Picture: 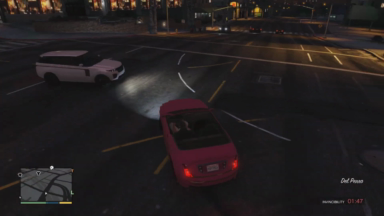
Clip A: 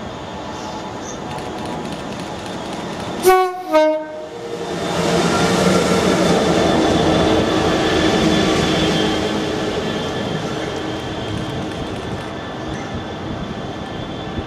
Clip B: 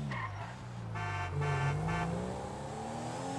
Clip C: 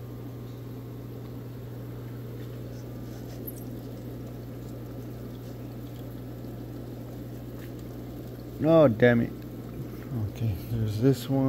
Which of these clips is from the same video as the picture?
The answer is B